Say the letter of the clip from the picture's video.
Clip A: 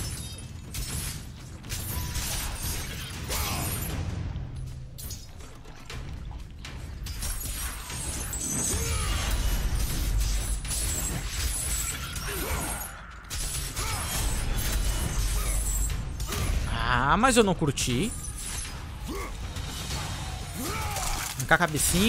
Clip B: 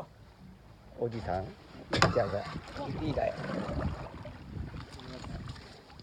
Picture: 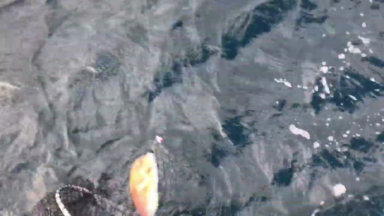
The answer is B